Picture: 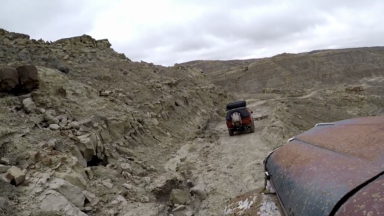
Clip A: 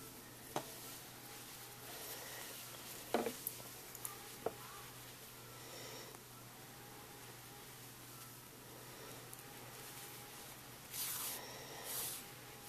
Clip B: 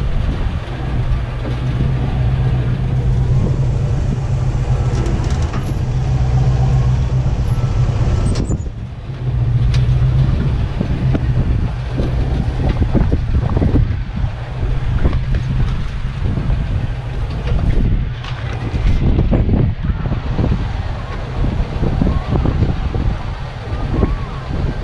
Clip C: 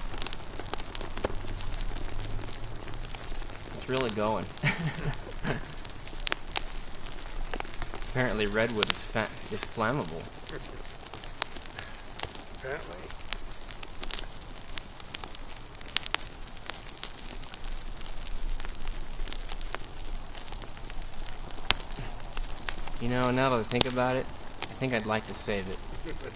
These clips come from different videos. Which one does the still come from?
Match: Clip B